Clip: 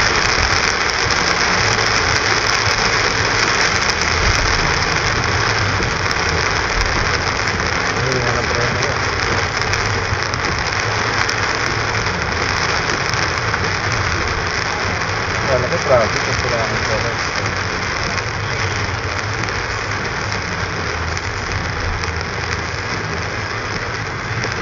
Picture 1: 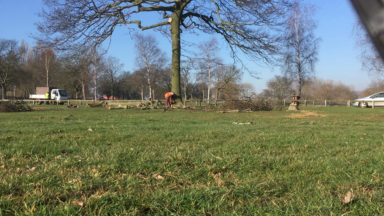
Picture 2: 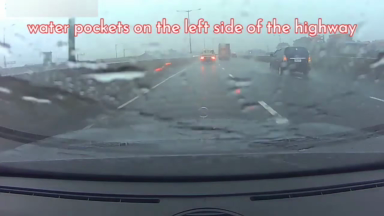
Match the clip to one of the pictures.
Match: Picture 2